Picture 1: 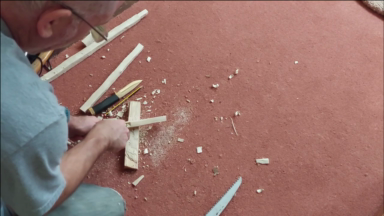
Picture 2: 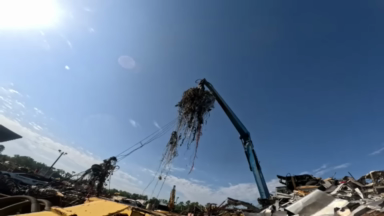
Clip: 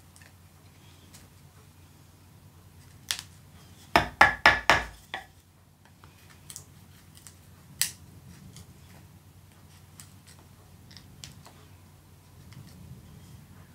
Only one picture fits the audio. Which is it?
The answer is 1